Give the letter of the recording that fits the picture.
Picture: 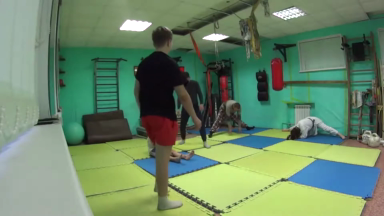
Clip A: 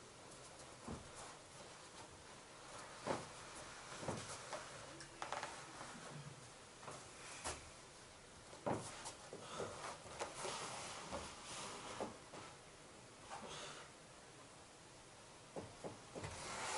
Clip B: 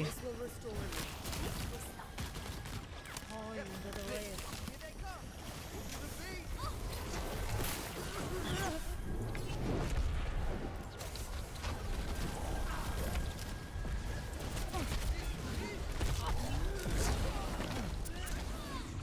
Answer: A